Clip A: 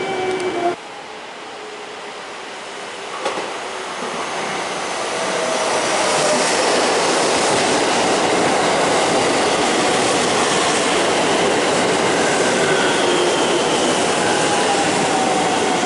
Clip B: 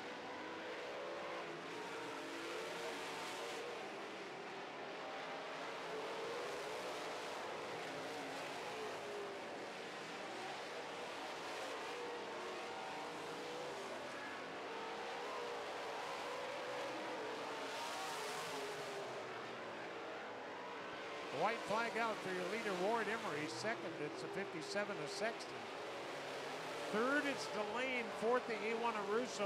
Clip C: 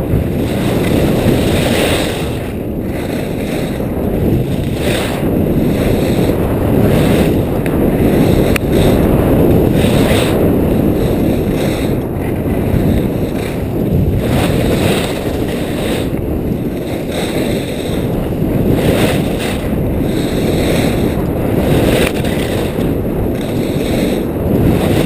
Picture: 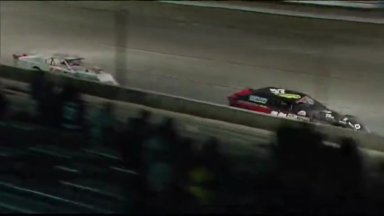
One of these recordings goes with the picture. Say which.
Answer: B